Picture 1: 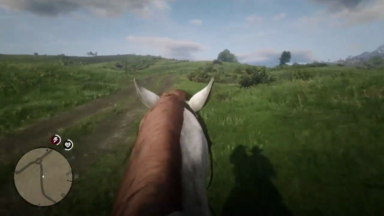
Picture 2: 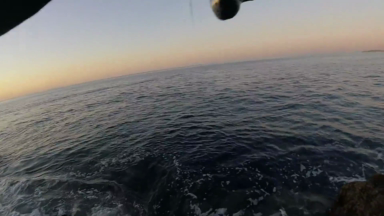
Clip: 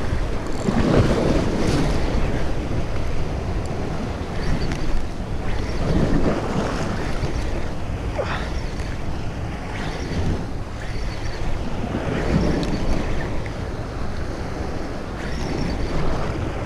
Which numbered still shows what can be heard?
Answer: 2